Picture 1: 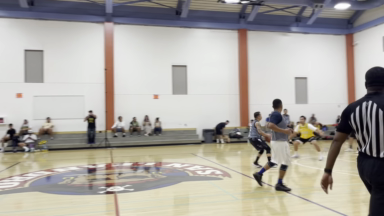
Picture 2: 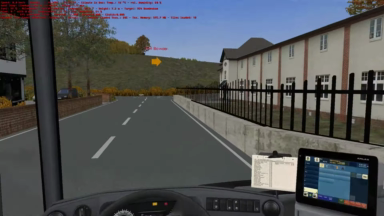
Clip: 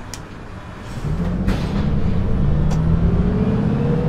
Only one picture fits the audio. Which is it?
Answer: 2